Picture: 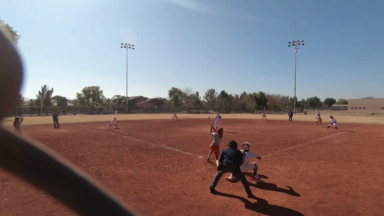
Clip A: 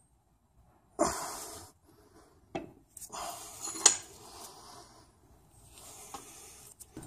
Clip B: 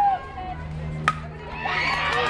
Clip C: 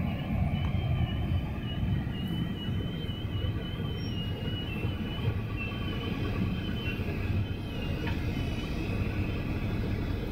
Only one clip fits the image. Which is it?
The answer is B